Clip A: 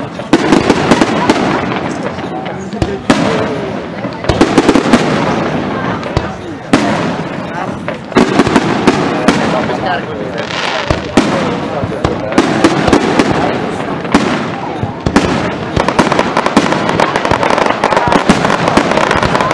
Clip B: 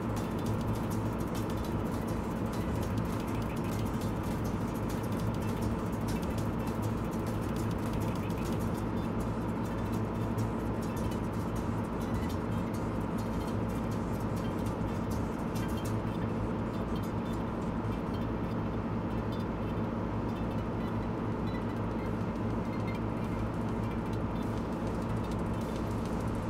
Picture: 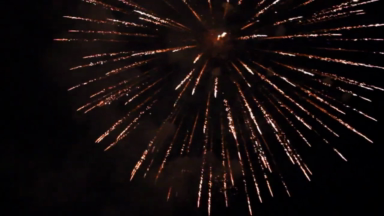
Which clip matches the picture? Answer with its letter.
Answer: A